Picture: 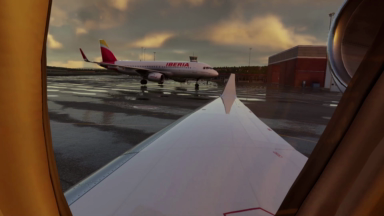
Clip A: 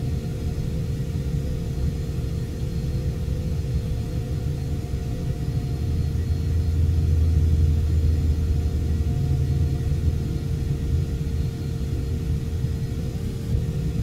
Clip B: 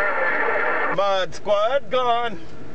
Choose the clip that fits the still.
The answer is A